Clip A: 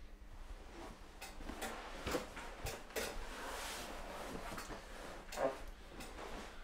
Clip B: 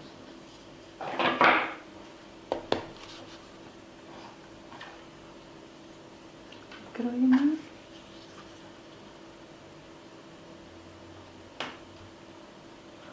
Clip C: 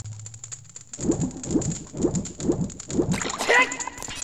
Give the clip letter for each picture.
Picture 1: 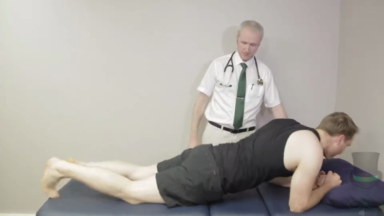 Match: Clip A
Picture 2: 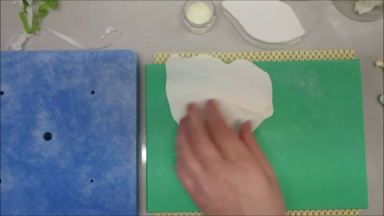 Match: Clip B